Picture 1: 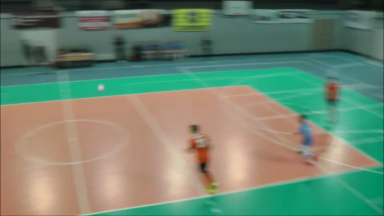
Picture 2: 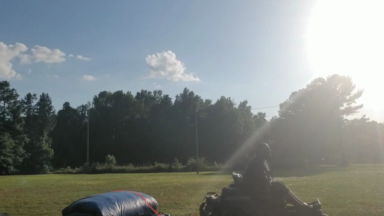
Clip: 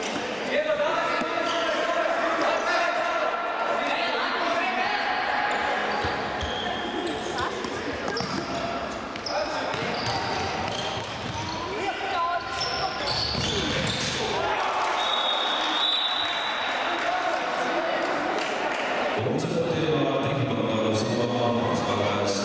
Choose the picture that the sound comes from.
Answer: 1